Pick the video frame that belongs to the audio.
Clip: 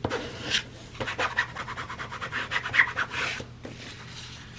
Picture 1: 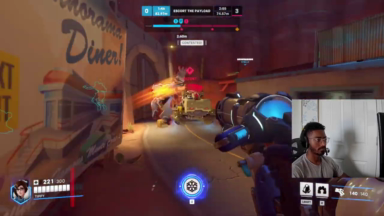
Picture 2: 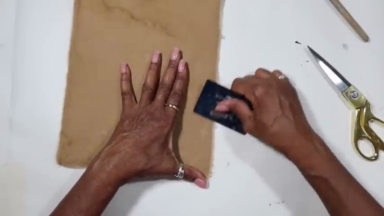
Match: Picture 2